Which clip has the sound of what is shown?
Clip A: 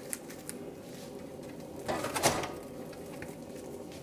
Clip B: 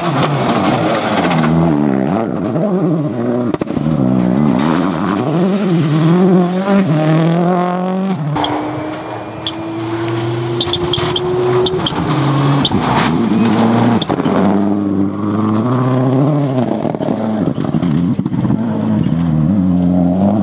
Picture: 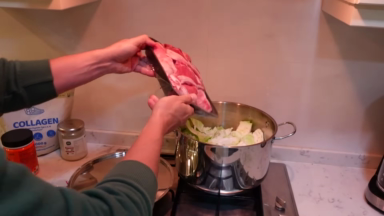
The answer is A